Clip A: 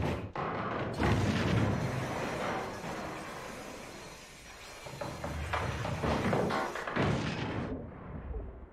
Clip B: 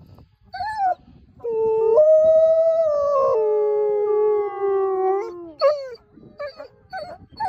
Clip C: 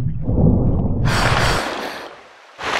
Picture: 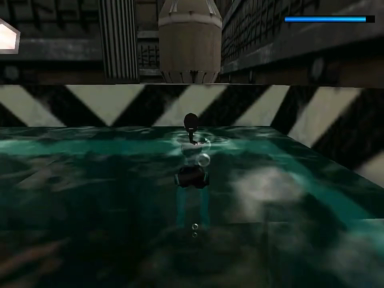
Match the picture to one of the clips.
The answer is C